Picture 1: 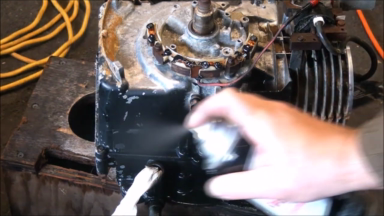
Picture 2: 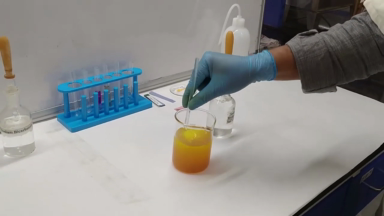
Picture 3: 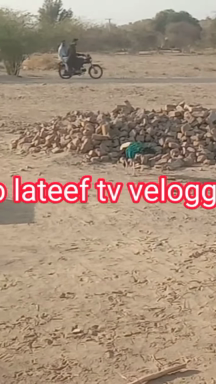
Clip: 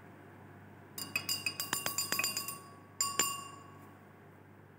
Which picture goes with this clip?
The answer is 2